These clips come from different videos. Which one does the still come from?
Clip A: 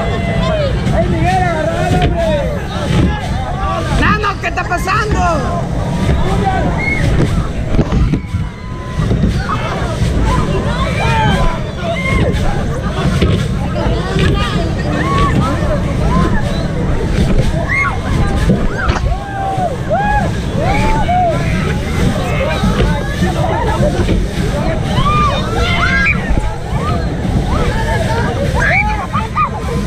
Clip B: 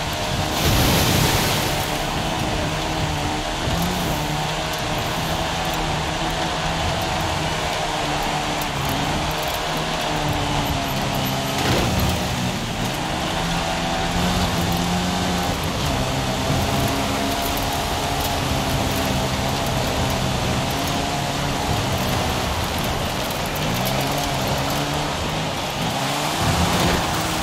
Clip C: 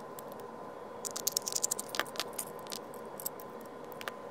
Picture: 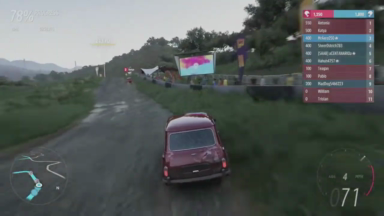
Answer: B